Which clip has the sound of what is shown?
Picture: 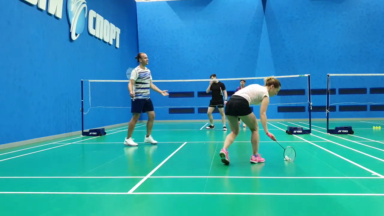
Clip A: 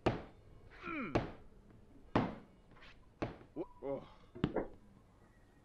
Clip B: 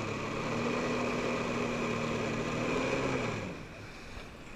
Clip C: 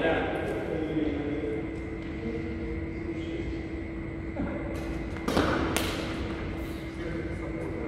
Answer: C